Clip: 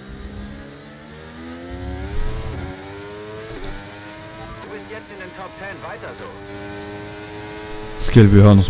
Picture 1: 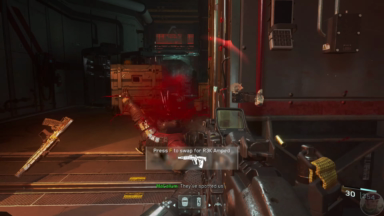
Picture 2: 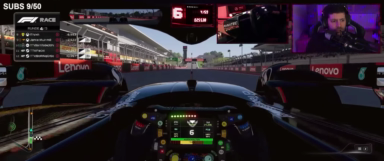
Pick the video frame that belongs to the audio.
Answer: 2